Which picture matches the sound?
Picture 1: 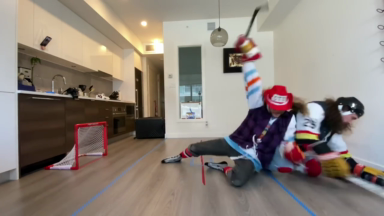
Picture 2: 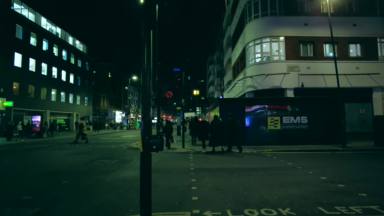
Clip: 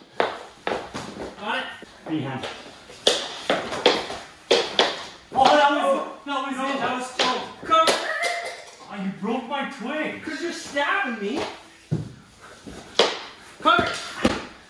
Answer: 1